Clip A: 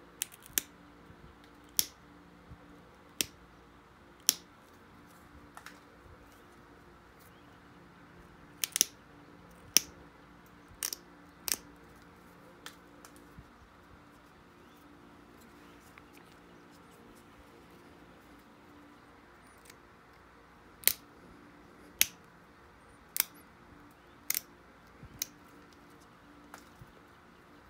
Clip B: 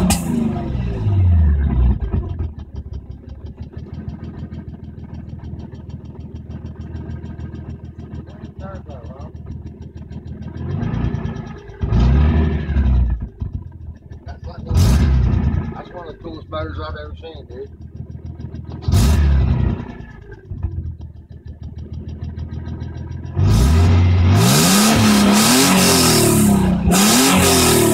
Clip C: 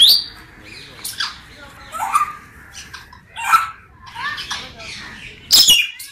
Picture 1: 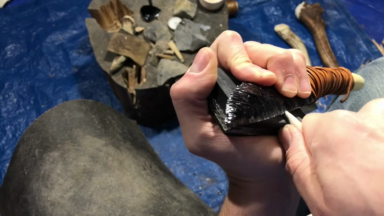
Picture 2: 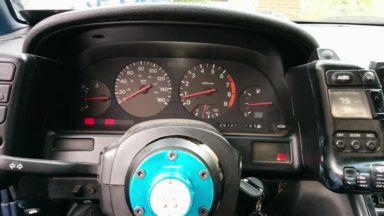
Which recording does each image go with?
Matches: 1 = A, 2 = B